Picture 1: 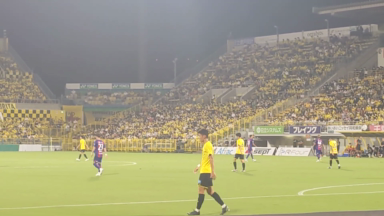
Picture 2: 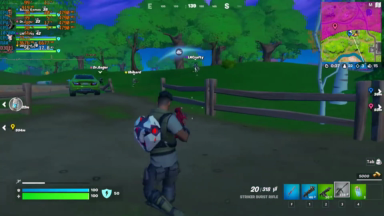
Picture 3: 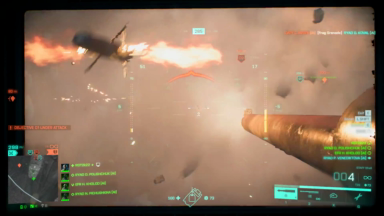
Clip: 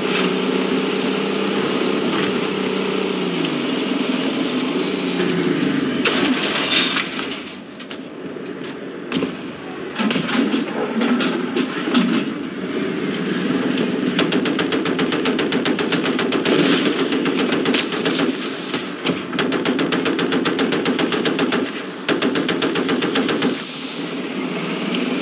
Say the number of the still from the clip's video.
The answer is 3